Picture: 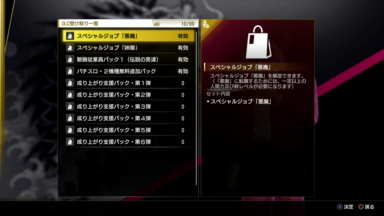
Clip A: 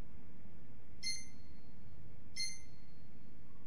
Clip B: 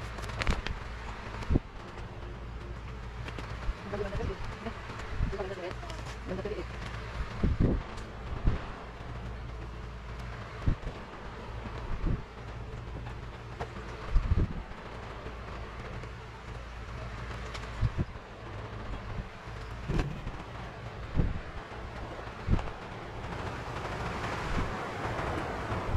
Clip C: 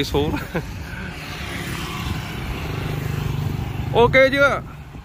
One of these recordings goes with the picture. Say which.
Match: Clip A